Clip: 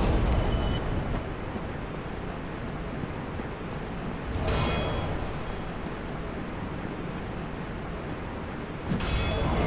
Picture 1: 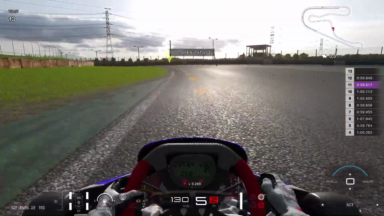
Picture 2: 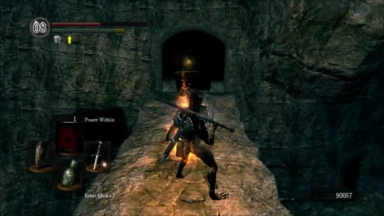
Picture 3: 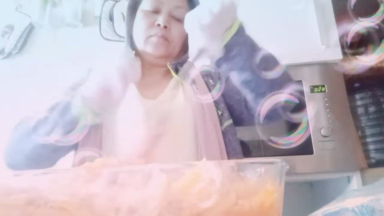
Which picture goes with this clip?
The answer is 2